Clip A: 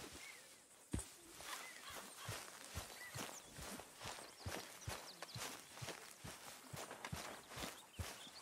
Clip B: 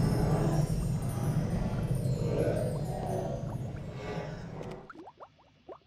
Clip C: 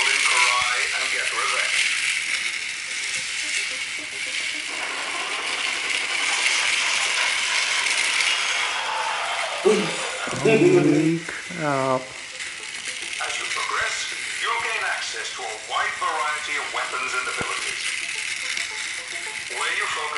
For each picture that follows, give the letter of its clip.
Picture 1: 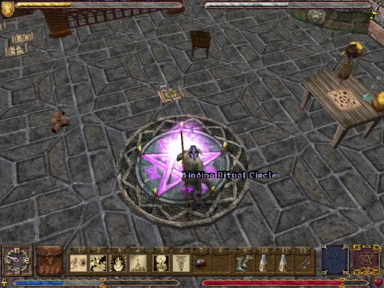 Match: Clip B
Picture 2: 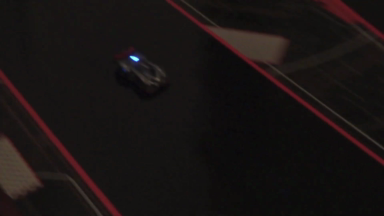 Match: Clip C